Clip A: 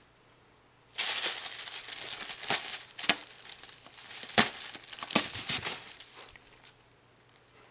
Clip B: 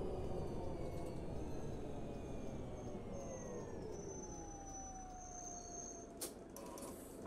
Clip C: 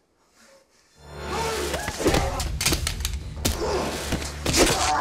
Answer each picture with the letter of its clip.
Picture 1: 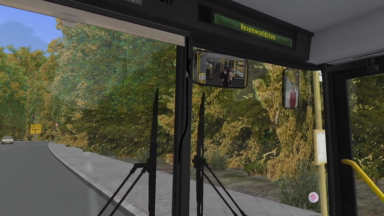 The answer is B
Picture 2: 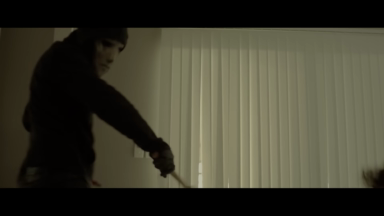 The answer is C